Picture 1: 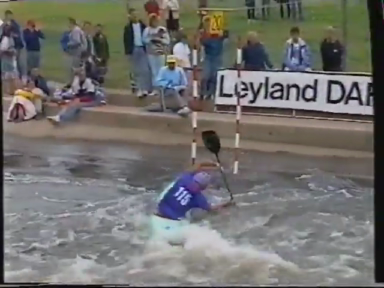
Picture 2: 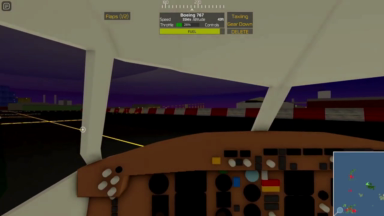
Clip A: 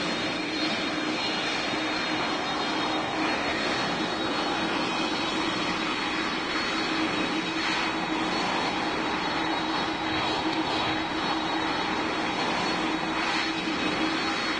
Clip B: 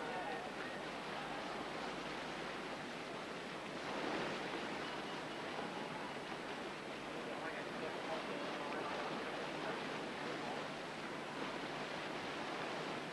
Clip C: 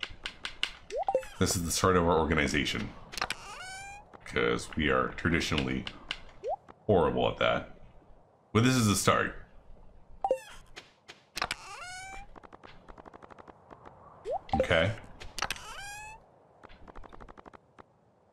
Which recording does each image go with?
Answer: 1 B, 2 A